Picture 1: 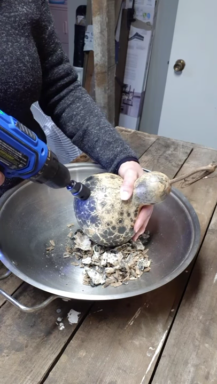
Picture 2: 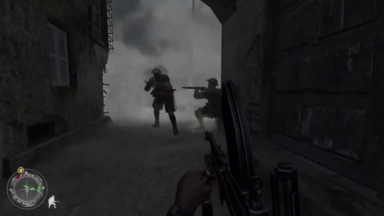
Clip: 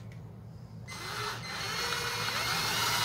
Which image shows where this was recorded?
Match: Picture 1